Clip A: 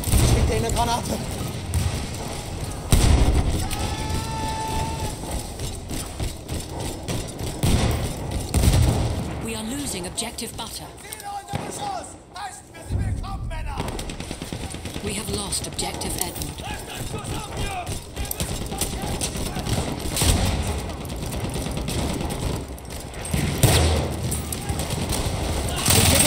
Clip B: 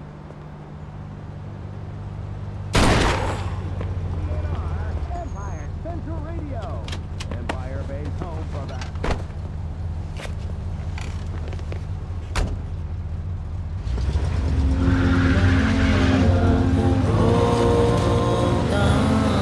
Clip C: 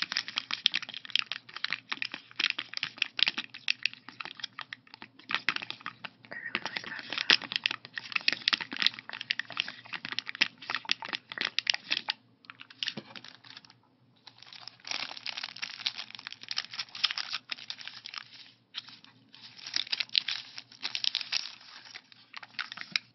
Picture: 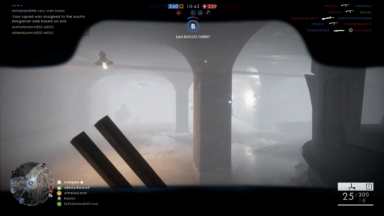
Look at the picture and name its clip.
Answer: A